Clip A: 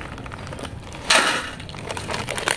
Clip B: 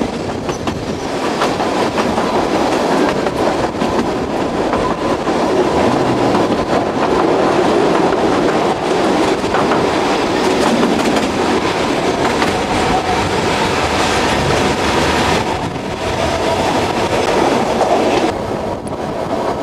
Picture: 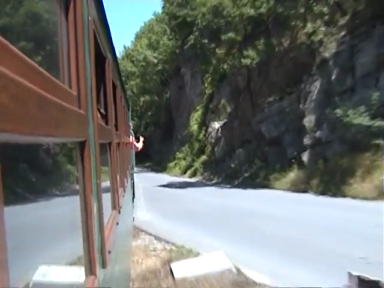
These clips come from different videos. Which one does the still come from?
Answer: B